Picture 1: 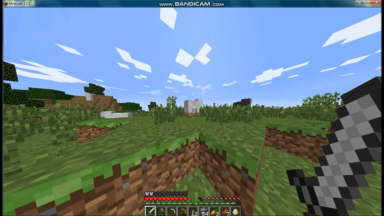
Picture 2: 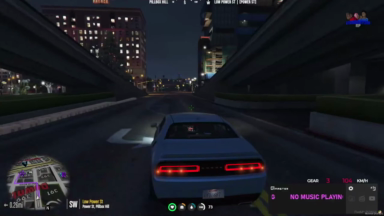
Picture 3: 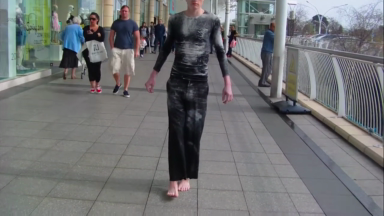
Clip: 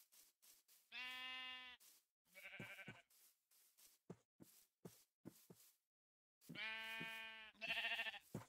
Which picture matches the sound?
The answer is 1